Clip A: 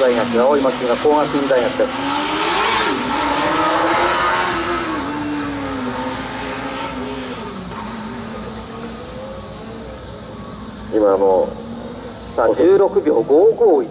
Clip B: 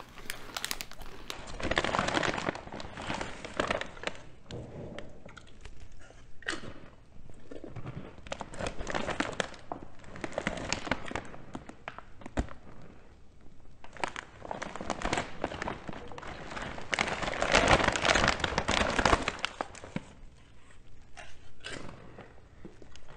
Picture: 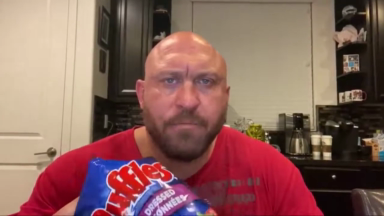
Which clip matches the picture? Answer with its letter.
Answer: B